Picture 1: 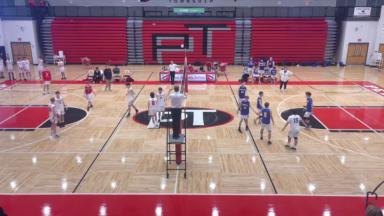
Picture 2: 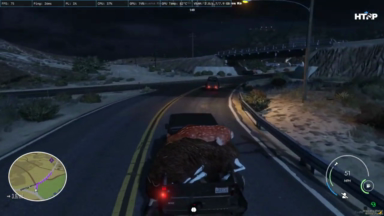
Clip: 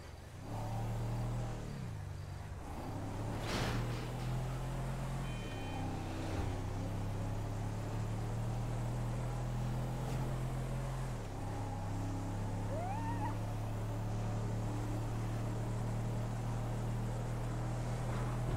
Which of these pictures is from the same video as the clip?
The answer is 2